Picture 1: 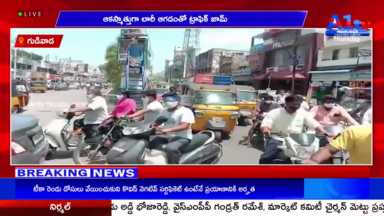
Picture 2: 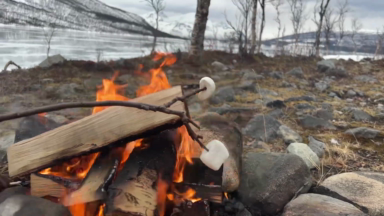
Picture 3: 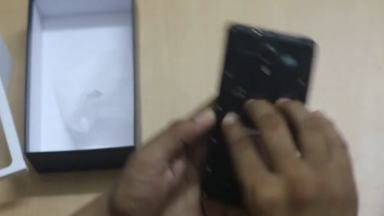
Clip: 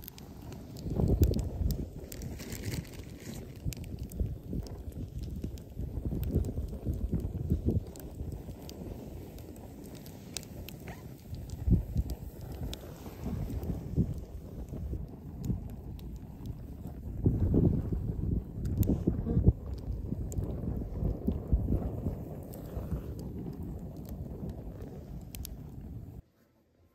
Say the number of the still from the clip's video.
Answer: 2